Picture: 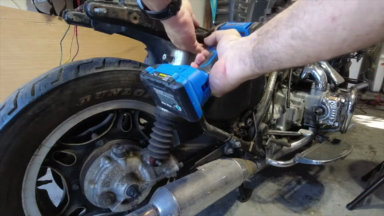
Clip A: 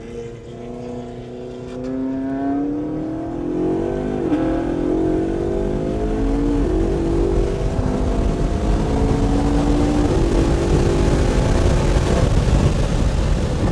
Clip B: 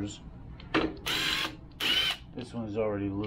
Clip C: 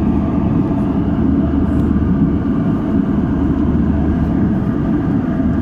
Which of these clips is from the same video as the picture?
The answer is B